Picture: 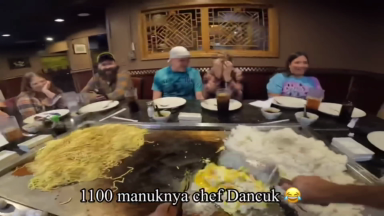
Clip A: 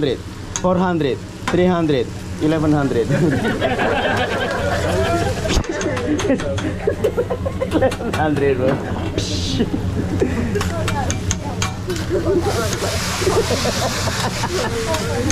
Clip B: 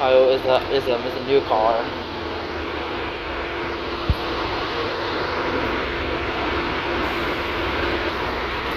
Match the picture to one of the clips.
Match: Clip A